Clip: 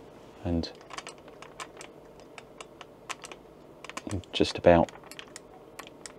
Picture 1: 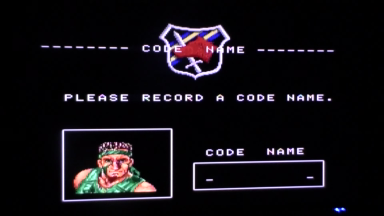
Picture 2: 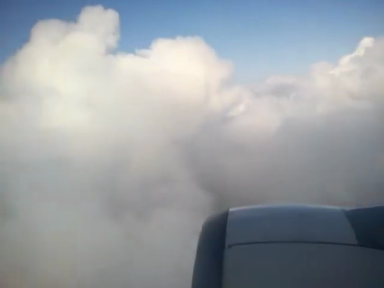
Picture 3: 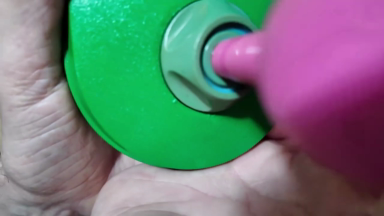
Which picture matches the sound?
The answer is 3